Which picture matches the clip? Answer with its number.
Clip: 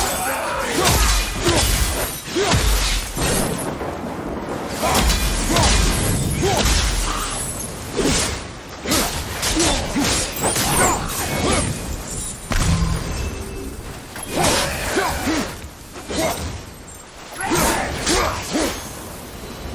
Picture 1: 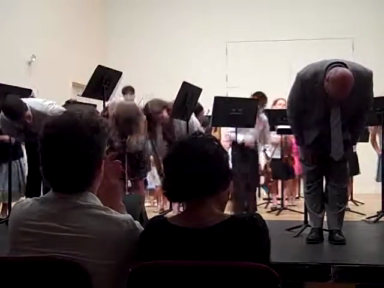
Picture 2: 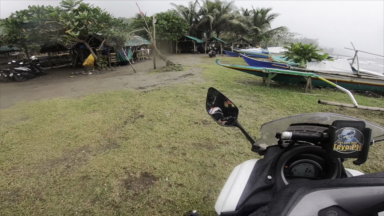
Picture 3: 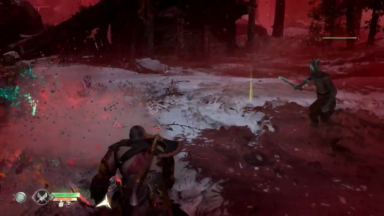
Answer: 3